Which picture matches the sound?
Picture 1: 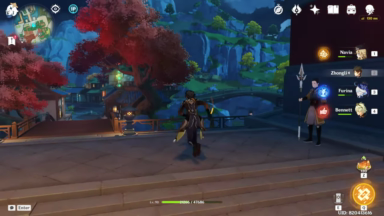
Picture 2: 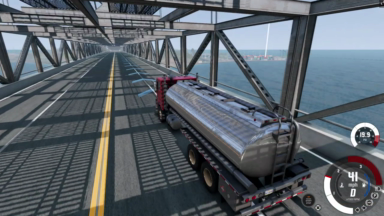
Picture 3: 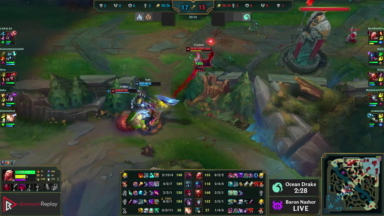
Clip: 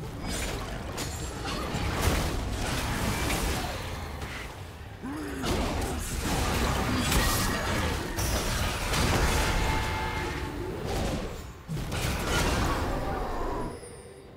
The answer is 3